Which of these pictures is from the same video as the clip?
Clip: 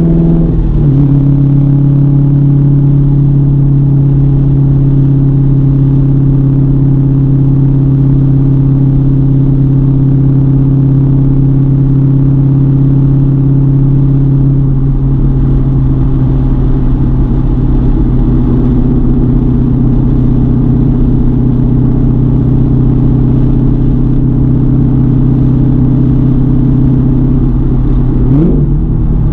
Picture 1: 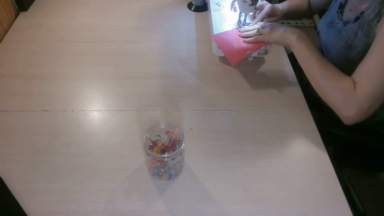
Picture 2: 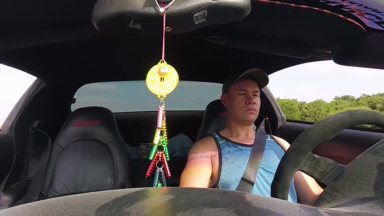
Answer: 2